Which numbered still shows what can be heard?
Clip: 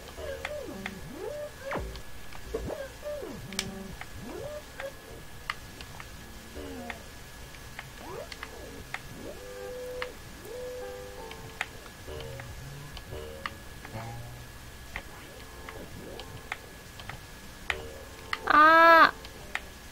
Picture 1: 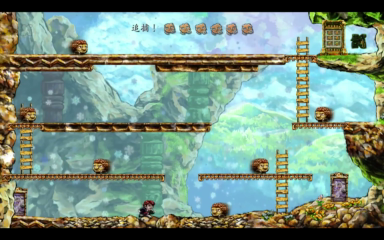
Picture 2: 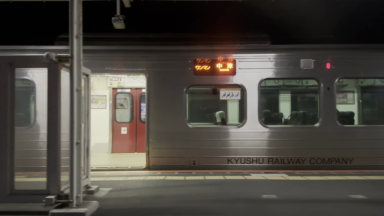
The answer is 1